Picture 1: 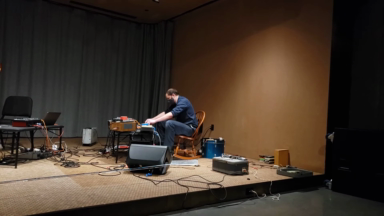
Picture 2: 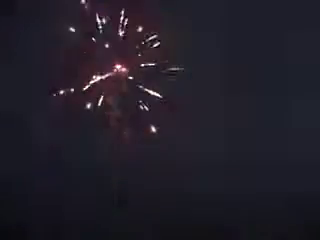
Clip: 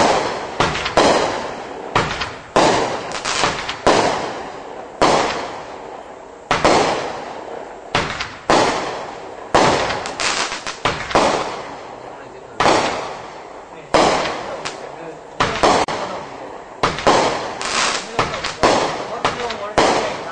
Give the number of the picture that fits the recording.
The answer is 2